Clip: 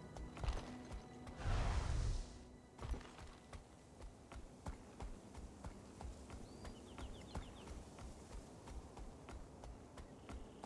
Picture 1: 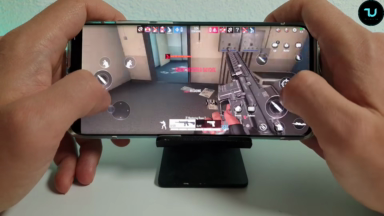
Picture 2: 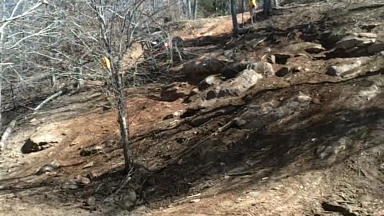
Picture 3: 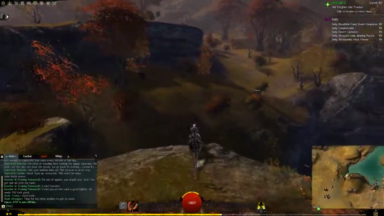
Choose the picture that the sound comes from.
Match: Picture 3